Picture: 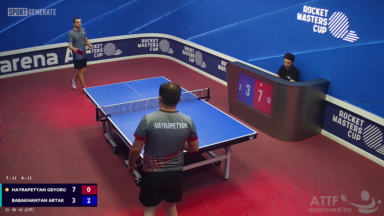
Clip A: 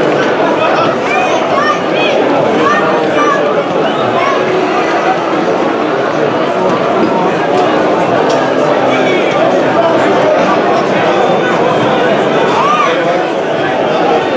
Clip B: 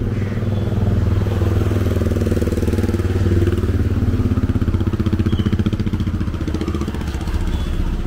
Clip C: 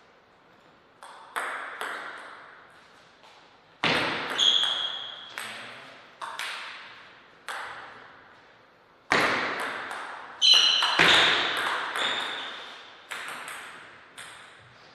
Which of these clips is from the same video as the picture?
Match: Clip C